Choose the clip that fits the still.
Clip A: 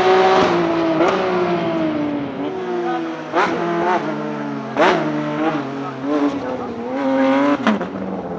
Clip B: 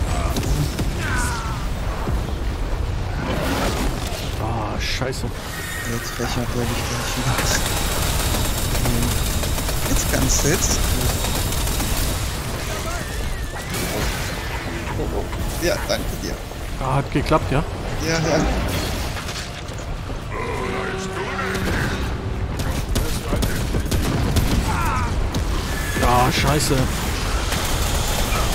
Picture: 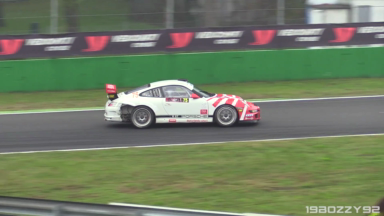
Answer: A